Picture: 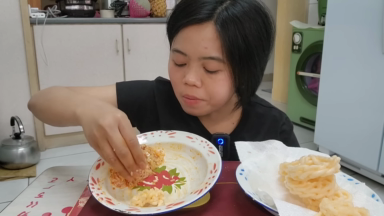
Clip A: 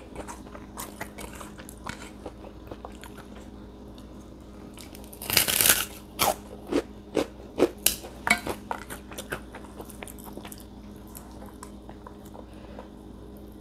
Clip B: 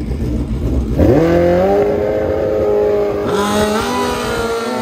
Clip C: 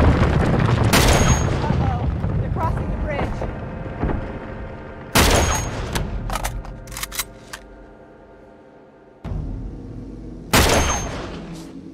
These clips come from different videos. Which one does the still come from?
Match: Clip A